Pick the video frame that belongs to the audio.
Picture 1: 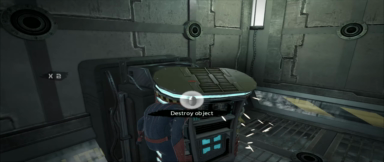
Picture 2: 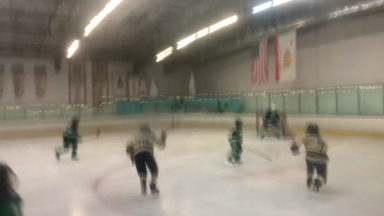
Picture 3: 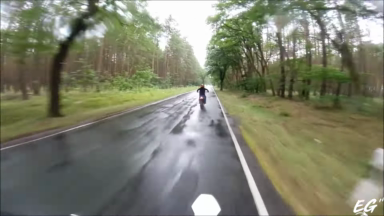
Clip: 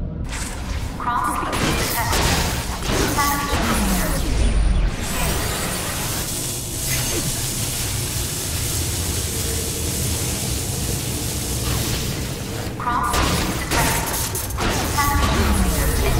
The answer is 1